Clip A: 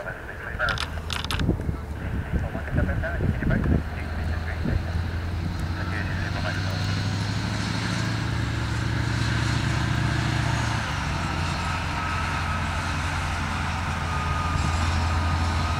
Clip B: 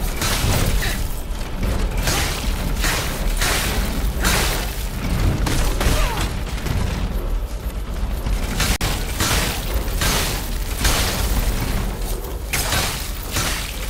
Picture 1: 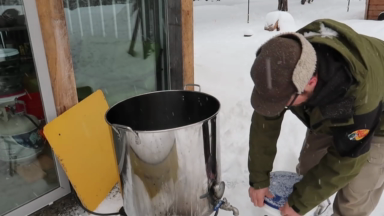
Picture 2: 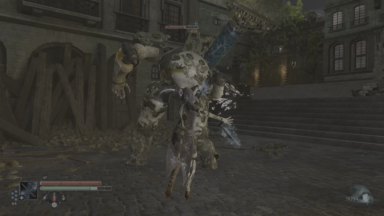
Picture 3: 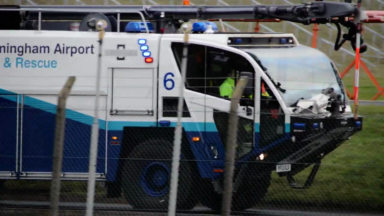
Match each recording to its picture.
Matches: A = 3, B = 2